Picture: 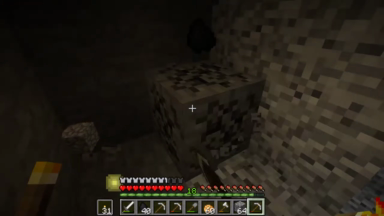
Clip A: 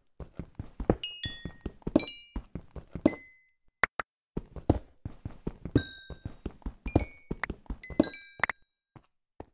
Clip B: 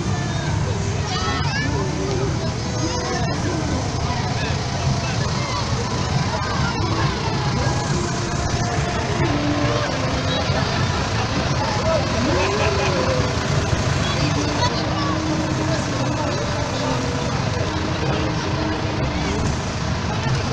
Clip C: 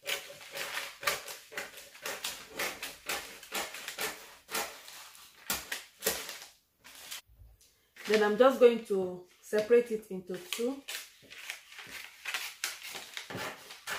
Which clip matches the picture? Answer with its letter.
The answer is A